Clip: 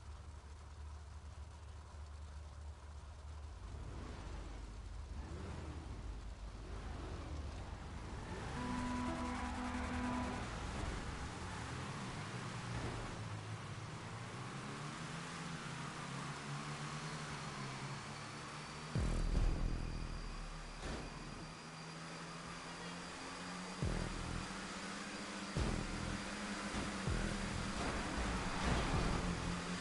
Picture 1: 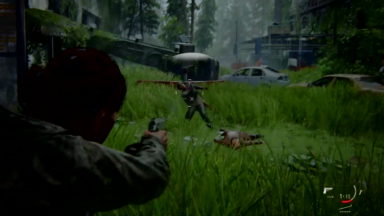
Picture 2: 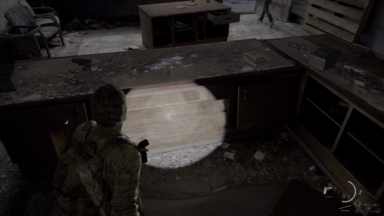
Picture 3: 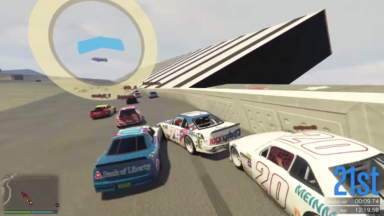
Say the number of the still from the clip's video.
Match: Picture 3